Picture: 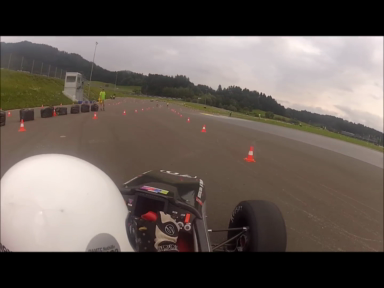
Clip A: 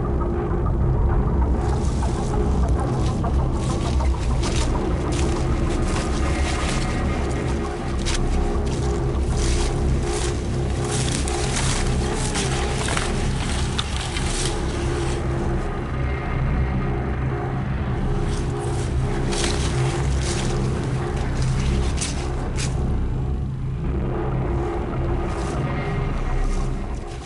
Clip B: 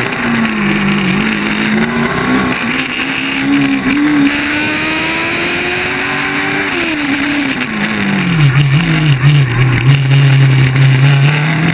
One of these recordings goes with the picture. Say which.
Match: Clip B